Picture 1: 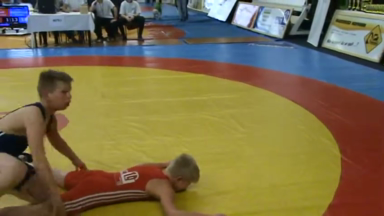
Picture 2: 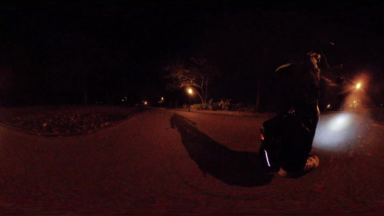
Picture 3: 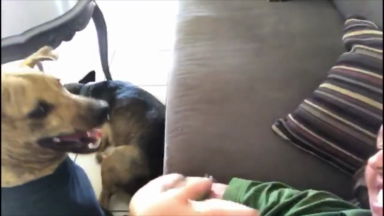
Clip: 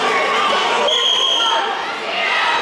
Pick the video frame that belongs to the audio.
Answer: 1